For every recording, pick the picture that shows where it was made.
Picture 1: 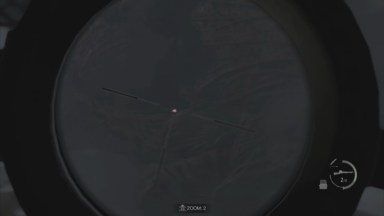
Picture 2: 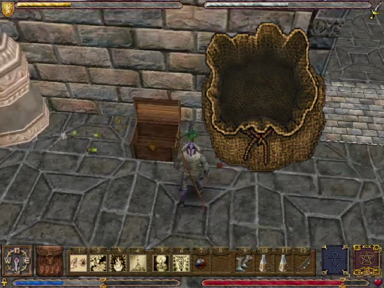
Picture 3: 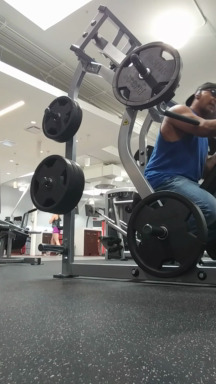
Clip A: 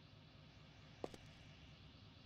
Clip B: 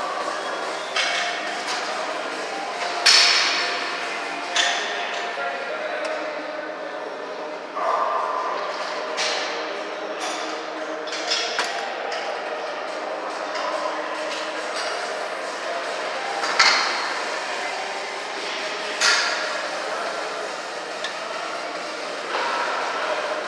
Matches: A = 2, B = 3